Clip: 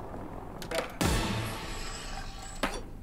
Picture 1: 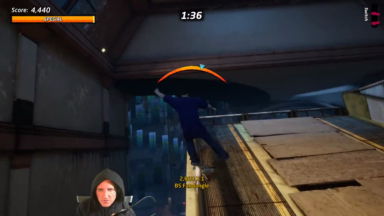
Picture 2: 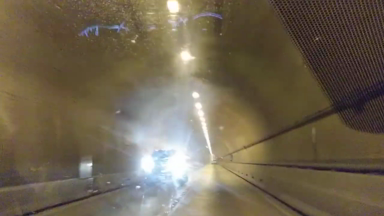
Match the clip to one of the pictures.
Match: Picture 1